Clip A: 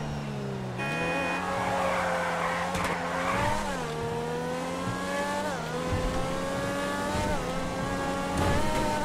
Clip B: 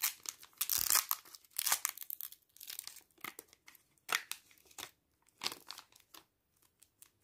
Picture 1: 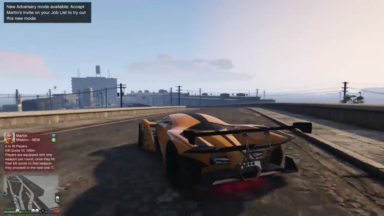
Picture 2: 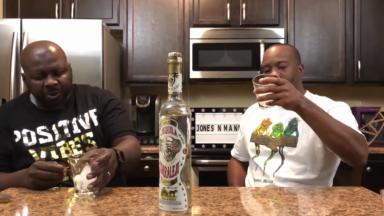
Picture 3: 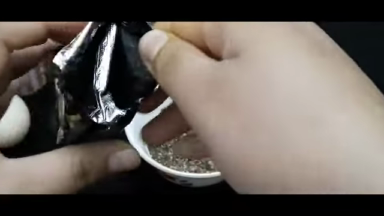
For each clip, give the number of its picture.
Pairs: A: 1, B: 3